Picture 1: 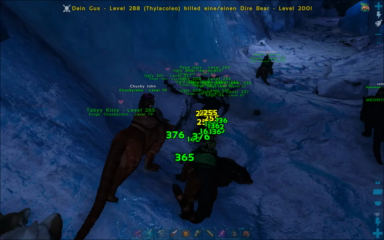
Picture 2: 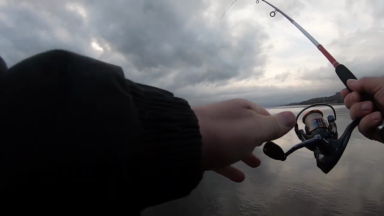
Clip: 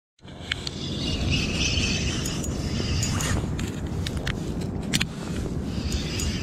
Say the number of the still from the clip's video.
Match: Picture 2